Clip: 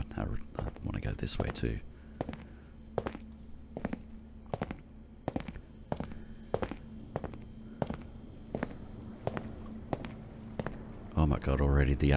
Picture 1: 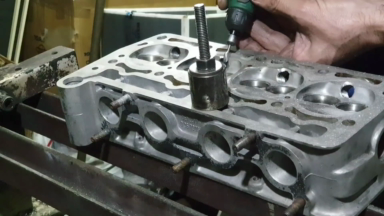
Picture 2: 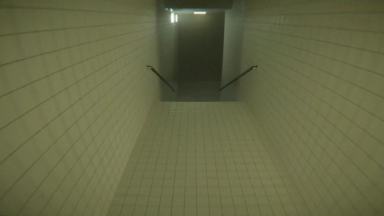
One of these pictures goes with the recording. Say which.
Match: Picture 2